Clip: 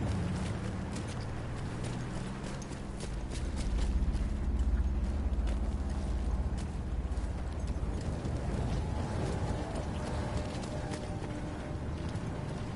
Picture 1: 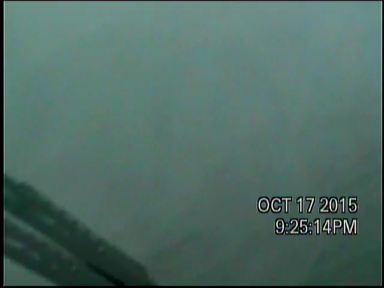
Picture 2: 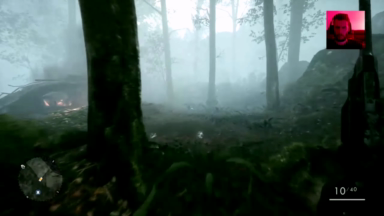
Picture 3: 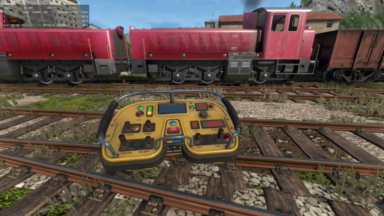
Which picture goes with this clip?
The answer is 2